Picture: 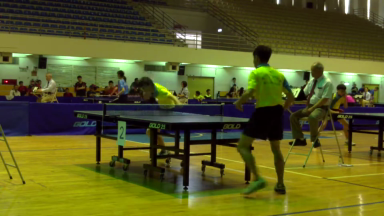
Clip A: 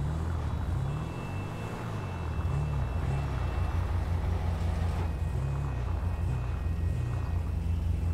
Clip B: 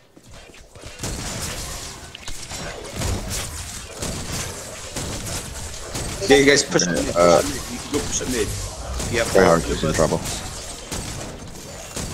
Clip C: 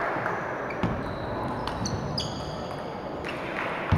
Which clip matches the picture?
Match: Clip C